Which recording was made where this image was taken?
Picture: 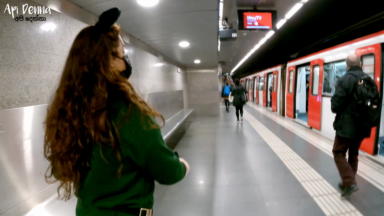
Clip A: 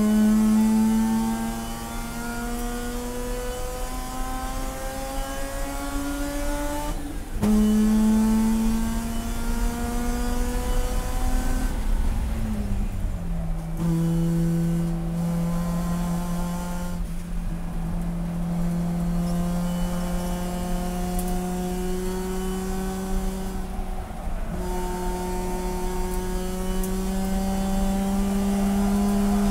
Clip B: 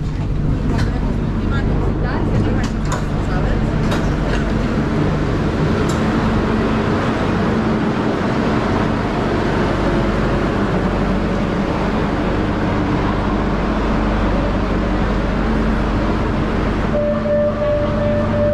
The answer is B